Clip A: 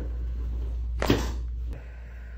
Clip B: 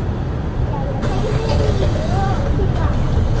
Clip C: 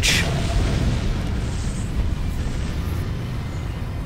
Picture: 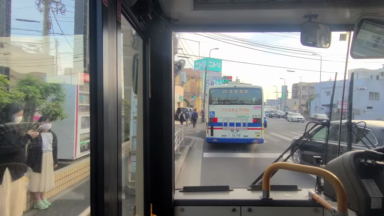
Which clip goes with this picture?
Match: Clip B